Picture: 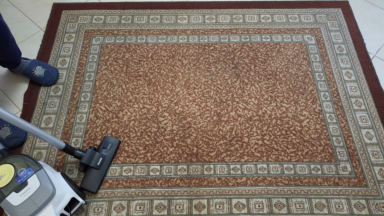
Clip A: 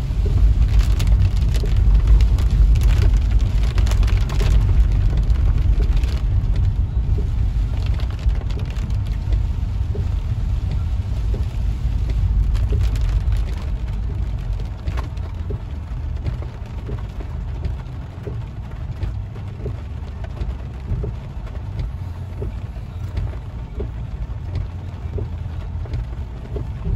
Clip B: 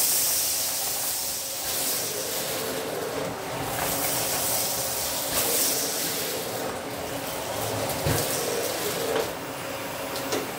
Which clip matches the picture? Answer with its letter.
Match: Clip B